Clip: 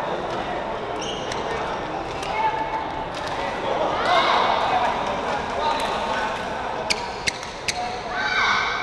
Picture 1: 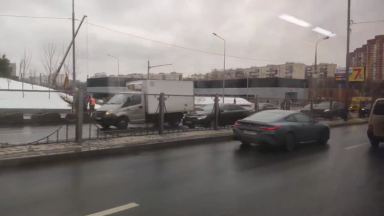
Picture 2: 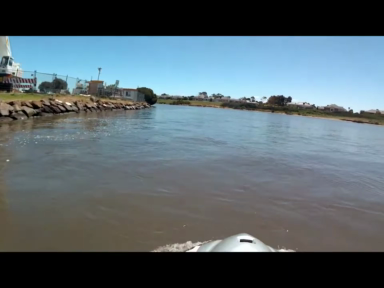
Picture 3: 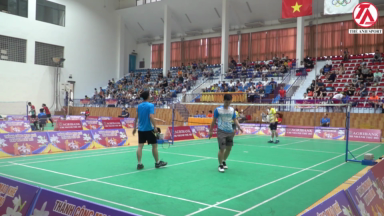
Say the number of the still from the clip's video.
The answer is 3